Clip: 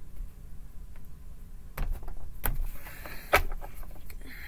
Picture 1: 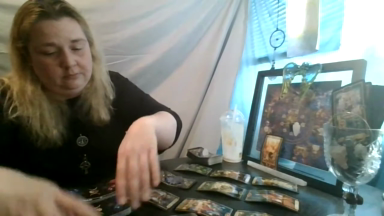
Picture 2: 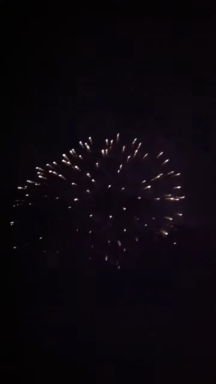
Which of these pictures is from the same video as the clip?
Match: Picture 1